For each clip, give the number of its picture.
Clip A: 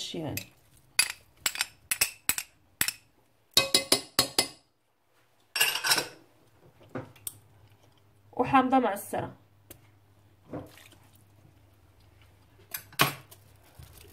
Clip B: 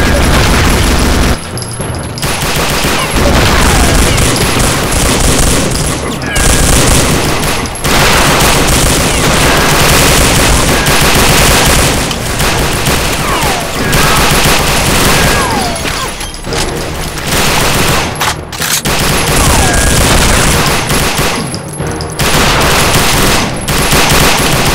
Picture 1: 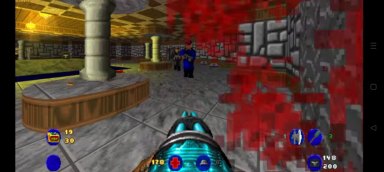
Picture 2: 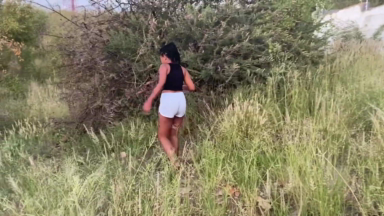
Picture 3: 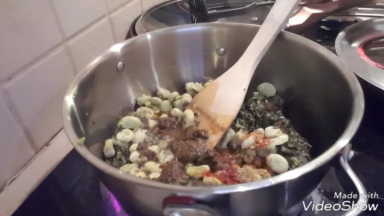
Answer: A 3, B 1